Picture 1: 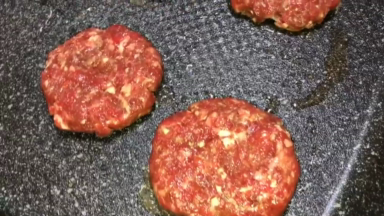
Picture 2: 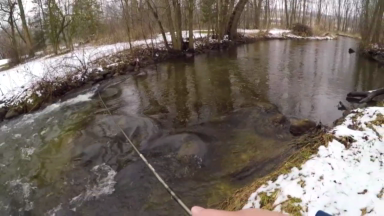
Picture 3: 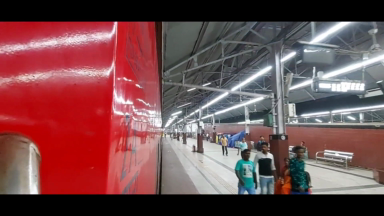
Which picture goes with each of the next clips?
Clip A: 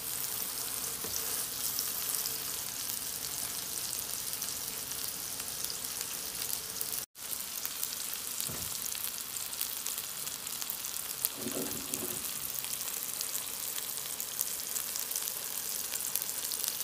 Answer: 1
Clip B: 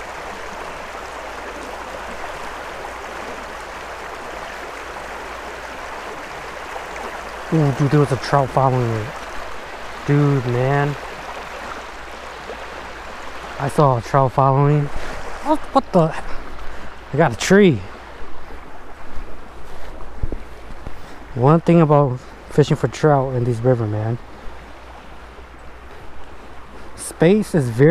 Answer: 2